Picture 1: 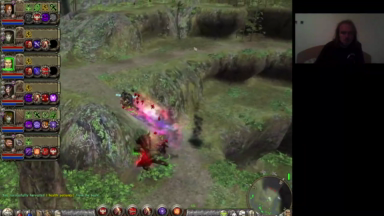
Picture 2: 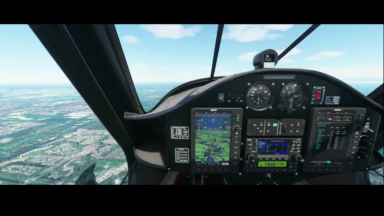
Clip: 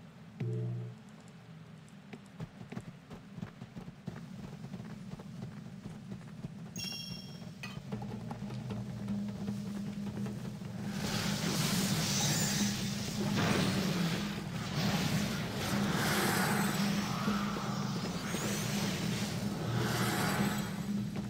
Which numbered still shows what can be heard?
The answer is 1